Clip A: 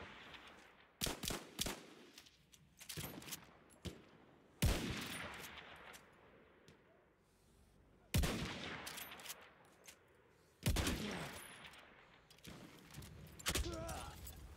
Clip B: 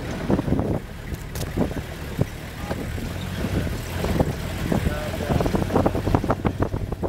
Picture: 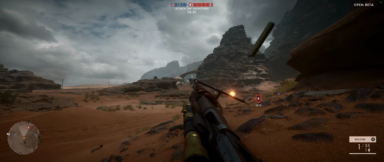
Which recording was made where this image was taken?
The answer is A